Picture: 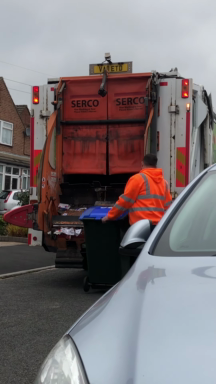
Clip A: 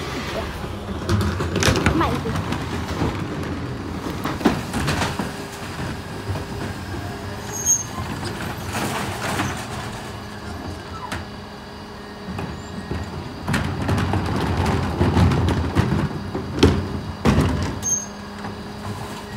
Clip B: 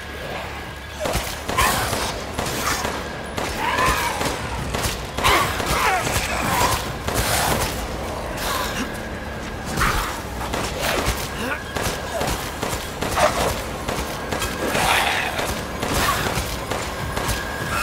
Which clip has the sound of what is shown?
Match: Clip A